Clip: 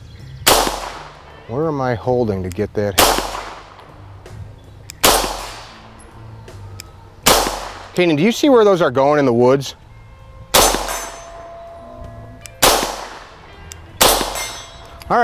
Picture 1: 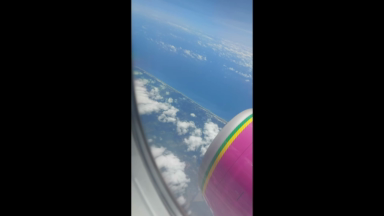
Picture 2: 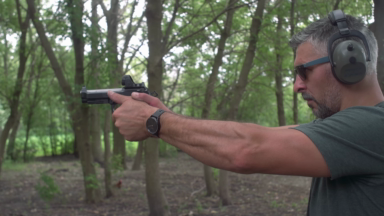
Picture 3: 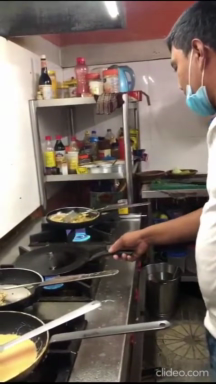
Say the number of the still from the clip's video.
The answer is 2